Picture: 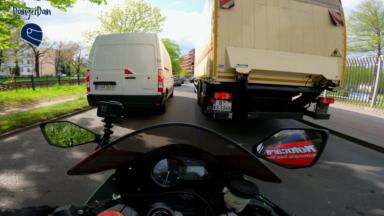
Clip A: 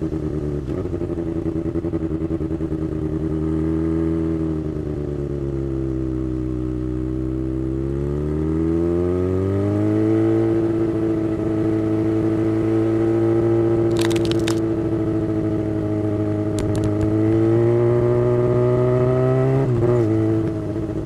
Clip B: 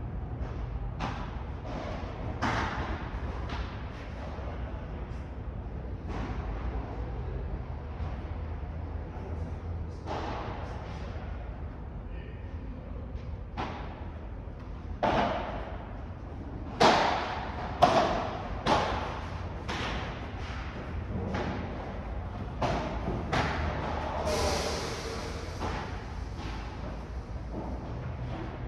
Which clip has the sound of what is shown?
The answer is A